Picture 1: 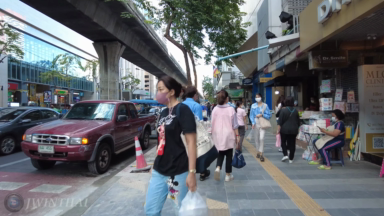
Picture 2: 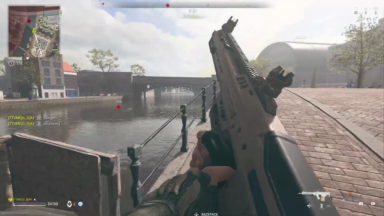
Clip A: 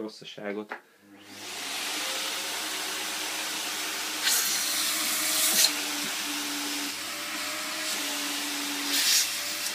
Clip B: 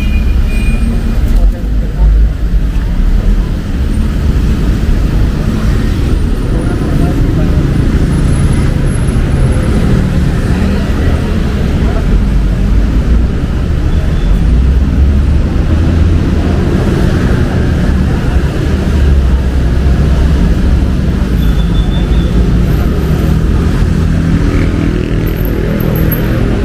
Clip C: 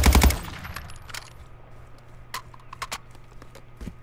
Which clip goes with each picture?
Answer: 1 B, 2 C